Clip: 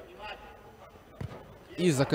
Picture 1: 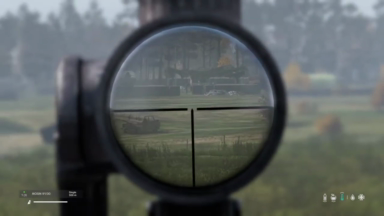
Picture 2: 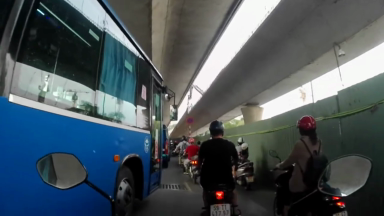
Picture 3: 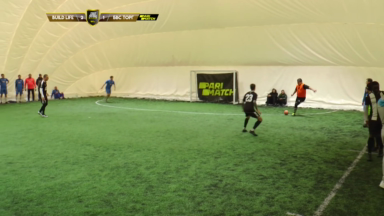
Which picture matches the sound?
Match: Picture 3